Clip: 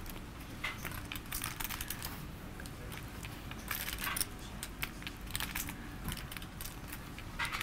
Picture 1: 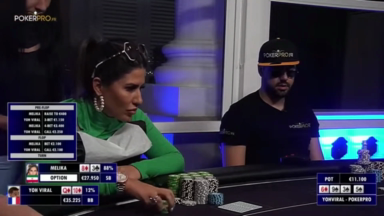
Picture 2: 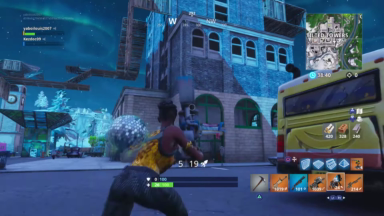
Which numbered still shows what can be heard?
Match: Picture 1